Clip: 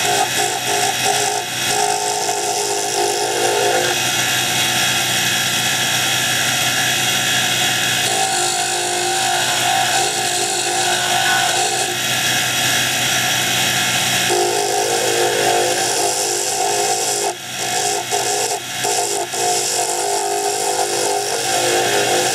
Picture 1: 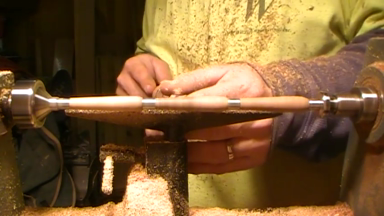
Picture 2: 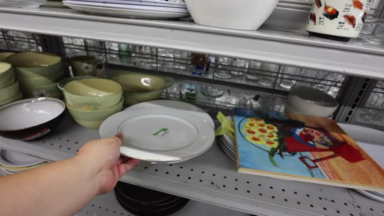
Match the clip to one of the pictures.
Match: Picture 1